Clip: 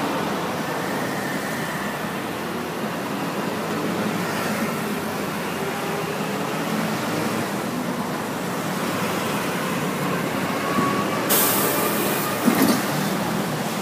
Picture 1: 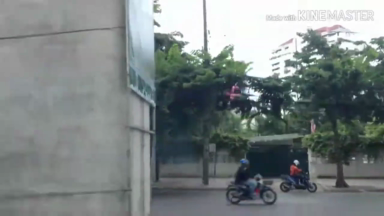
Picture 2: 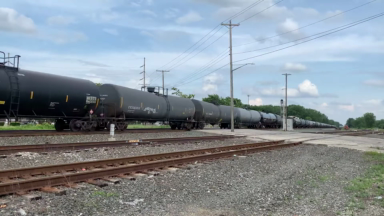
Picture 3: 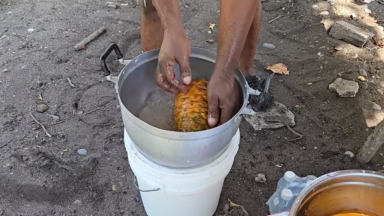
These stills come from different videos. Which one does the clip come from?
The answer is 1